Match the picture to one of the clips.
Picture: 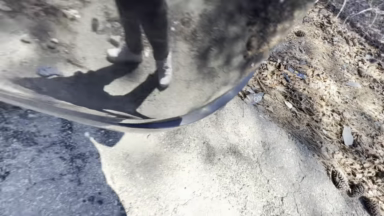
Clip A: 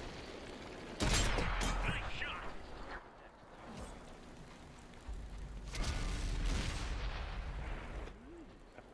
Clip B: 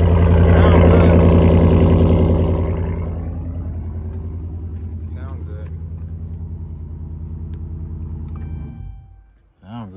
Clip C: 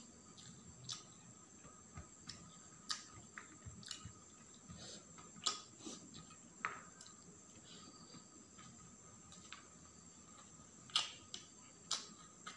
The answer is B